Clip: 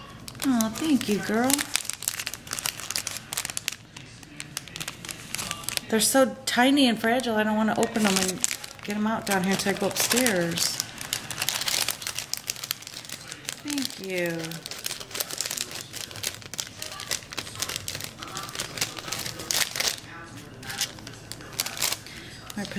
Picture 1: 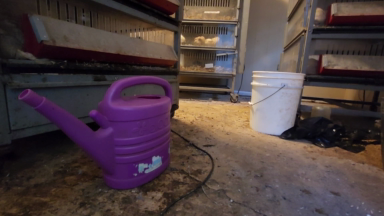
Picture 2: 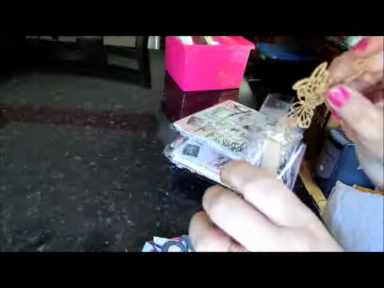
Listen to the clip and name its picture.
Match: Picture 2